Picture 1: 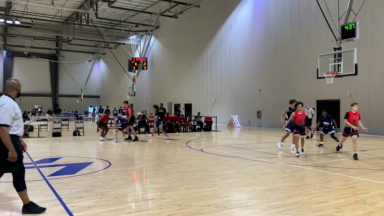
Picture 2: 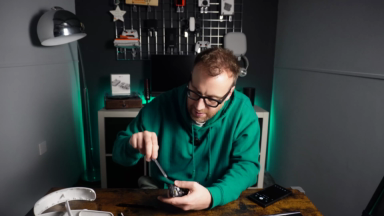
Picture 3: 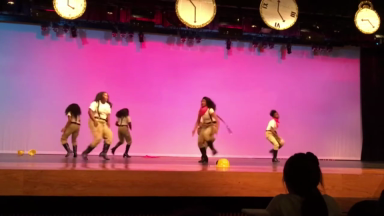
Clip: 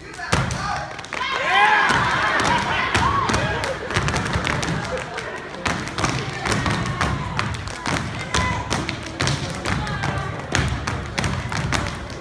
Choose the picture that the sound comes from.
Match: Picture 3